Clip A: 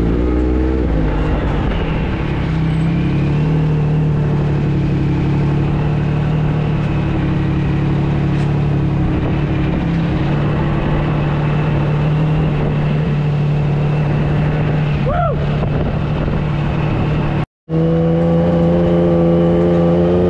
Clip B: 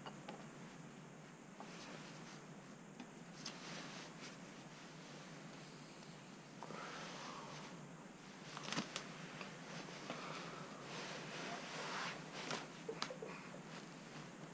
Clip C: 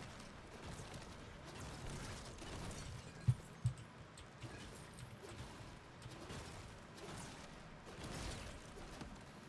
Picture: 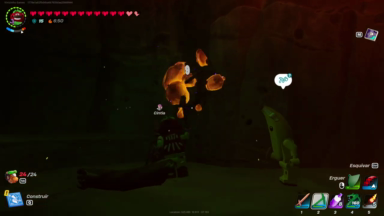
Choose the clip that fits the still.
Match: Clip C